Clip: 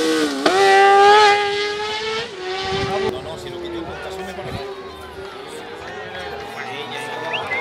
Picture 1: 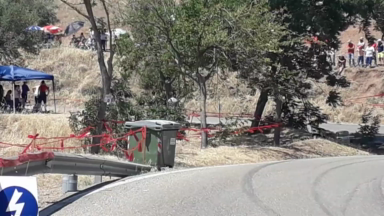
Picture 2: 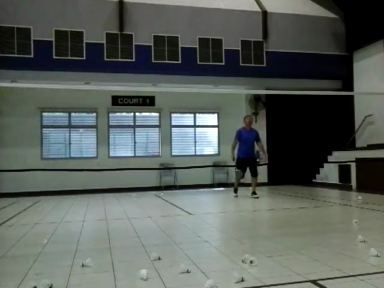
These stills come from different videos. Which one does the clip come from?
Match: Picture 1